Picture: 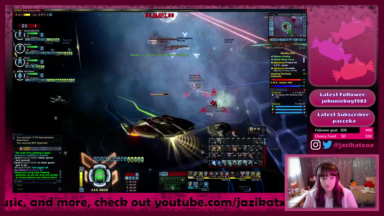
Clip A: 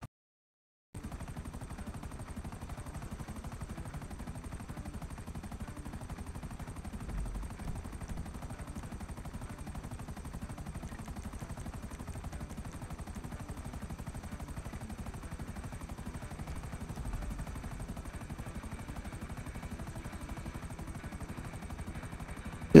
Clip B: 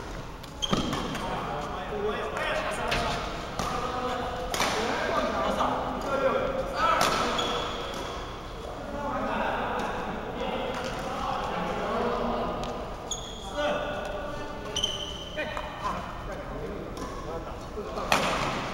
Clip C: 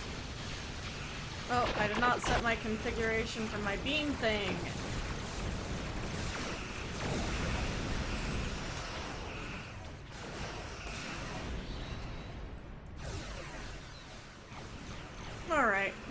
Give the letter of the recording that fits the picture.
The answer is C